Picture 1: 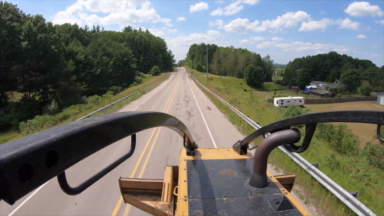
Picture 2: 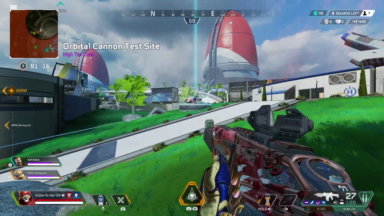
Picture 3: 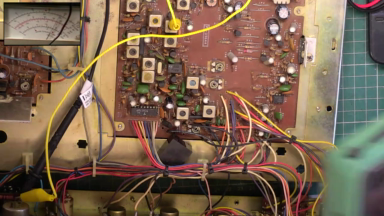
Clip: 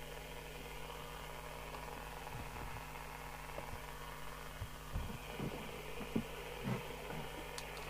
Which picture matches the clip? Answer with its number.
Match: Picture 3